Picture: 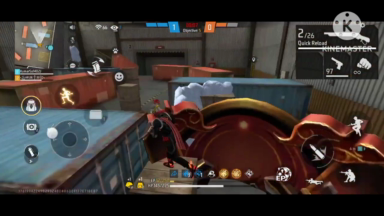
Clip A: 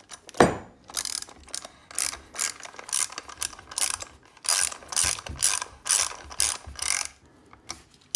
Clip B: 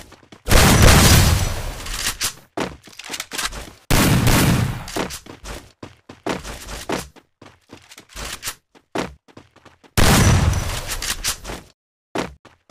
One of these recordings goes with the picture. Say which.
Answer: B